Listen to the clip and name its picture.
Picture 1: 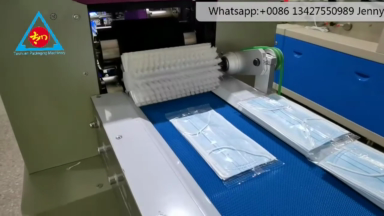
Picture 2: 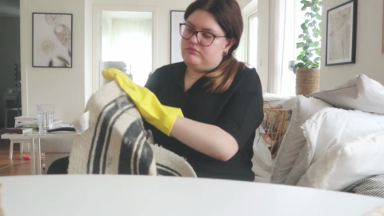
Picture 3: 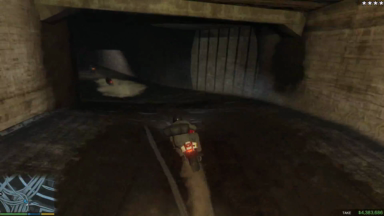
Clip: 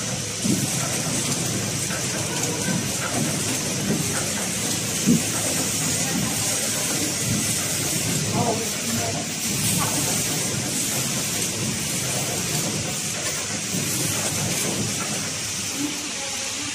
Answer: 1